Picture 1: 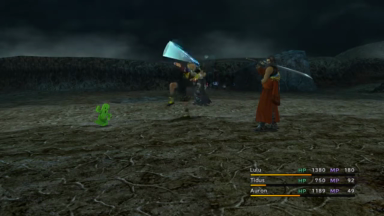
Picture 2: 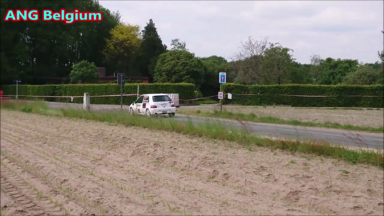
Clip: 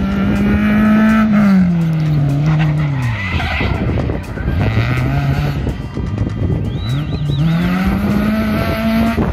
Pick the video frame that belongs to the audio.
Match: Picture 2